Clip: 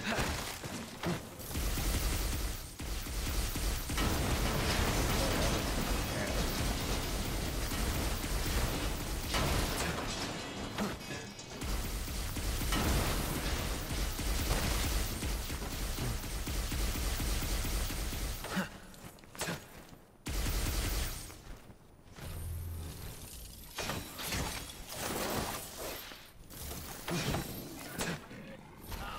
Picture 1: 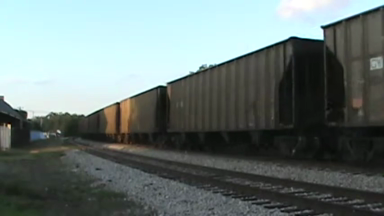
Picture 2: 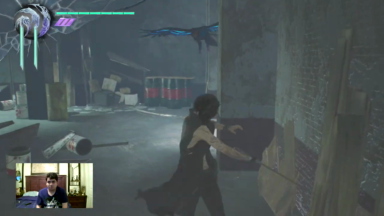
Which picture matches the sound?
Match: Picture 2